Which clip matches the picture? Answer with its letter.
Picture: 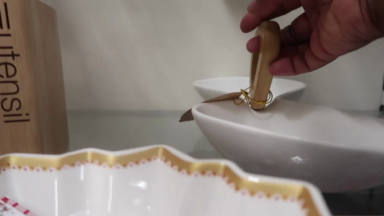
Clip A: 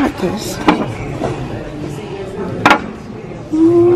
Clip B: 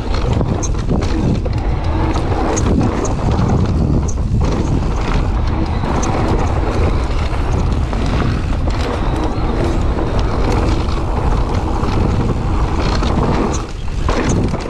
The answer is A